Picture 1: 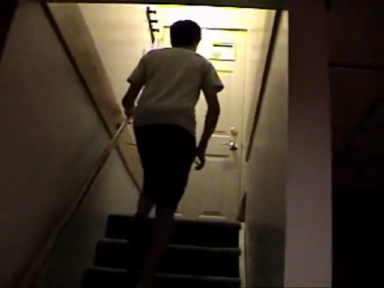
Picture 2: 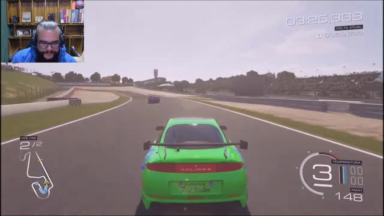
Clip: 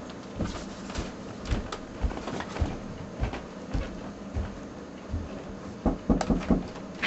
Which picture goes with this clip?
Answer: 1